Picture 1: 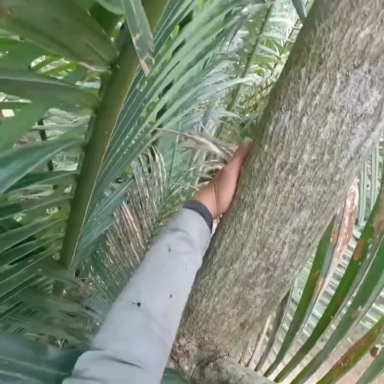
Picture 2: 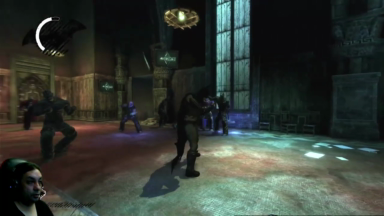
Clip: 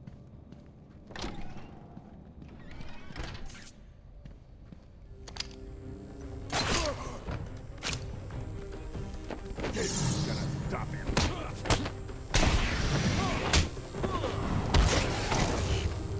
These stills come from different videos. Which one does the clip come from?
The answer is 2